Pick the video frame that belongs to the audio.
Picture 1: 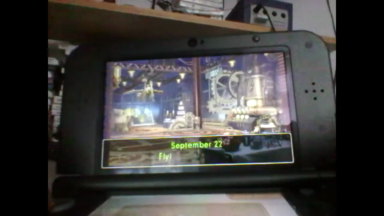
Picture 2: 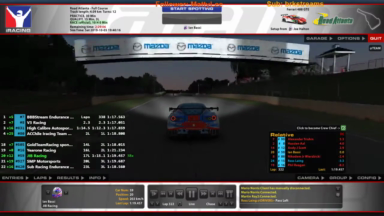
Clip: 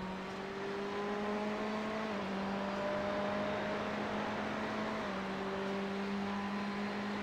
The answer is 2